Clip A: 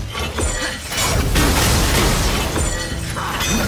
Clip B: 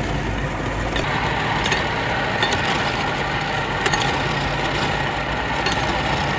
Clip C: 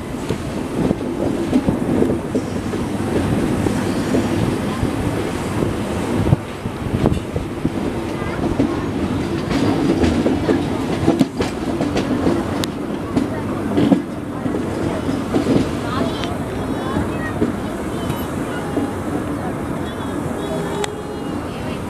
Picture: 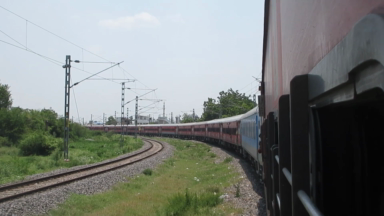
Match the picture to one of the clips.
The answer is C